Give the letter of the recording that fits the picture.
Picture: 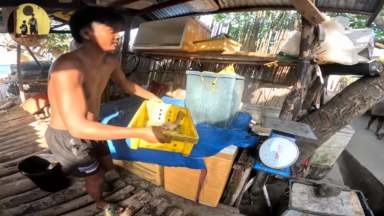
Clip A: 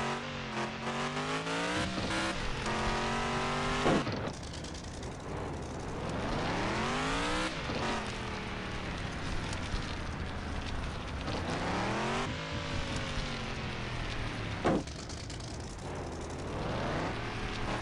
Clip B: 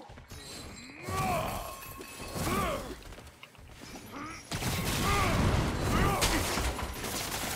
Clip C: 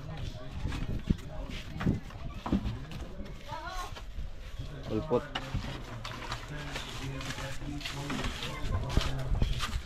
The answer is C